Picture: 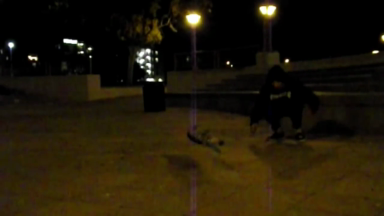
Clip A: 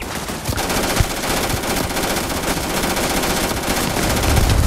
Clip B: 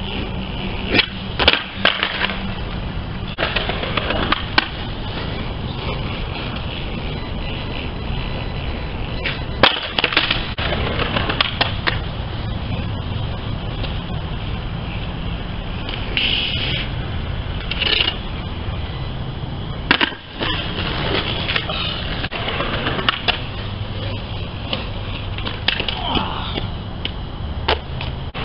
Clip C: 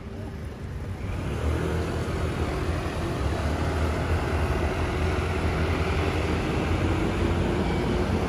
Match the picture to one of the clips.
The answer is B